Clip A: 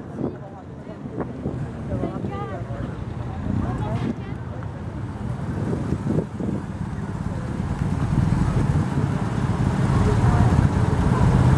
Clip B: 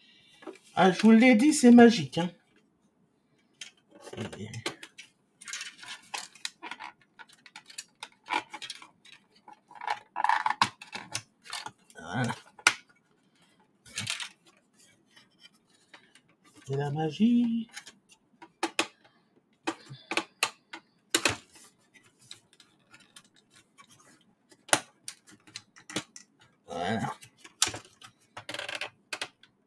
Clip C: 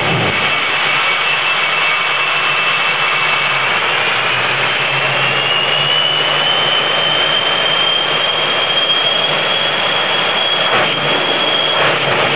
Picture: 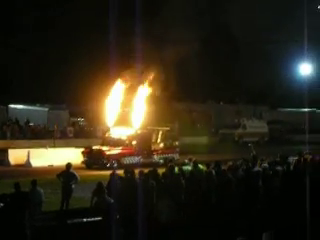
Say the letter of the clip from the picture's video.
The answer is C